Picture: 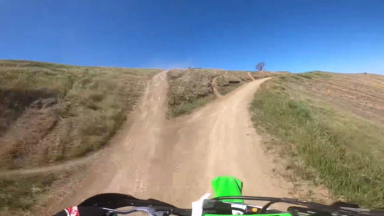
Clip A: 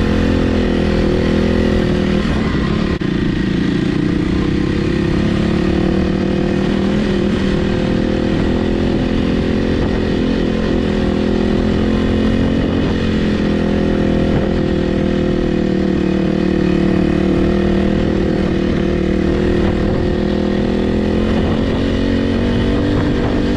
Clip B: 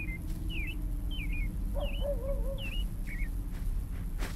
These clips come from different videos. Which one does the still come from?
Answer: A